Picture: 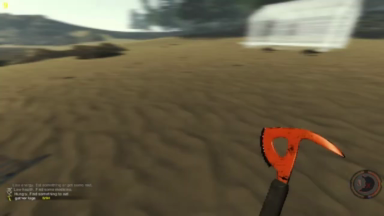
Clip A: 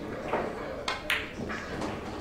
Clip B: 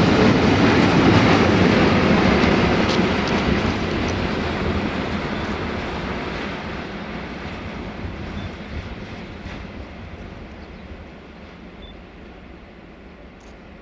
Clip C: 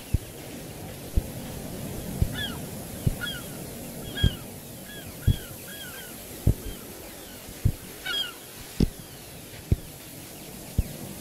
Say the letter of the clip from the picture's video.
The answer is C